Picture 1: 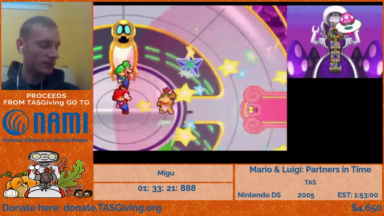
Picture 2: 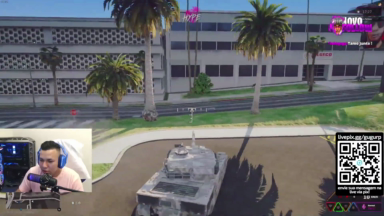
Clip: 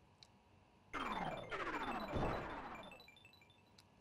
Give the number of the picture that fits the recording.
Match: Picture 1